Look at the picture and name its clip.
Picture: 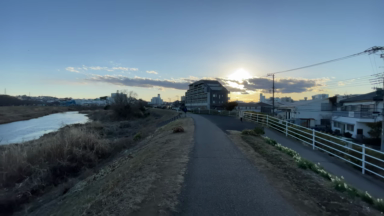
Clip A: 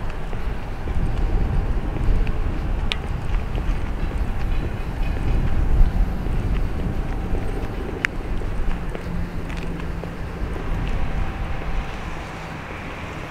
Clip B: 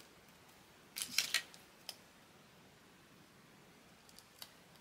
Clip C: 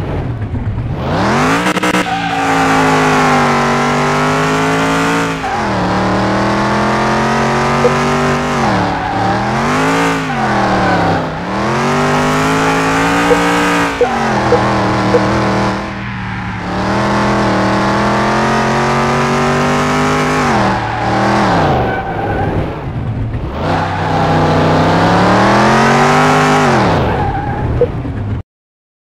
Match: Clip A